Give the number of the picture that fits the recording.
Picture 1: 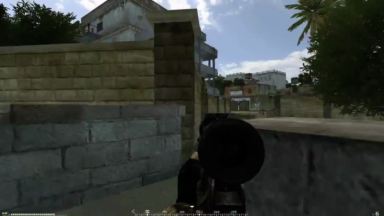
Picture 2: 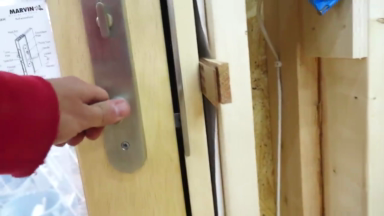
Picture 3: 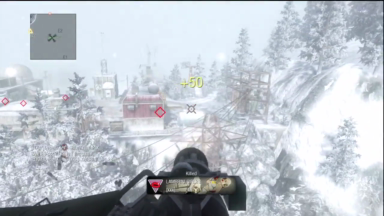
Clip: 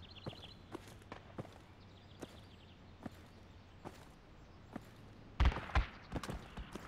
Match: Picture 1